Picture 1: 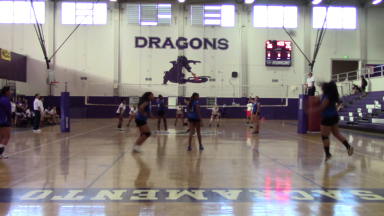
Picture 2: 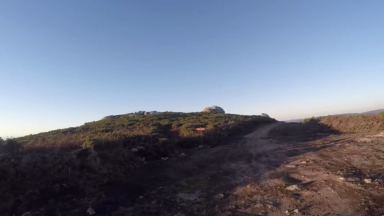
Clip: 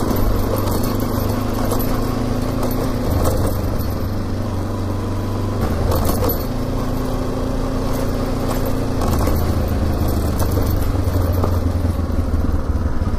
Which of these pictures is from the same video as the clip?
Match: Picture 2